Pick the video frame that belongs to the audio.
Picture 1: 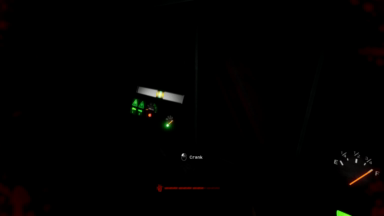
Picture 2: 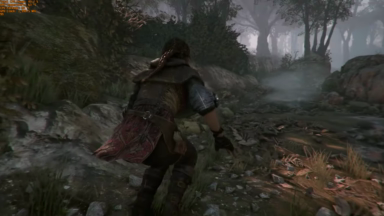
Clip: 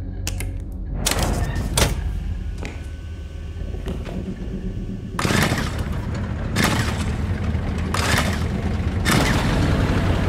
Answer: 1